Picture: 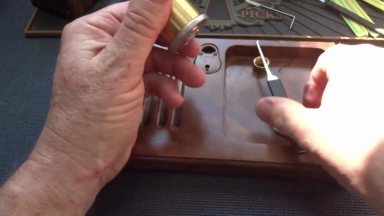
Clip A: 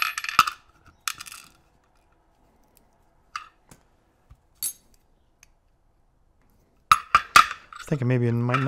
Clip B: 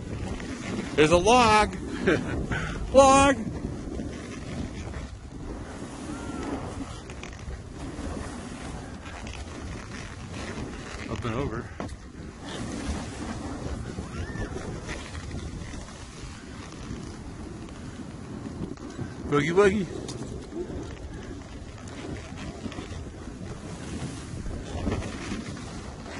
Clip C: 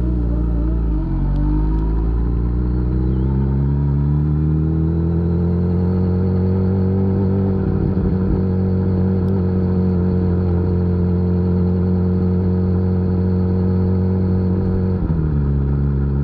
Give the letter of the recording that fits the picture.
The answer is A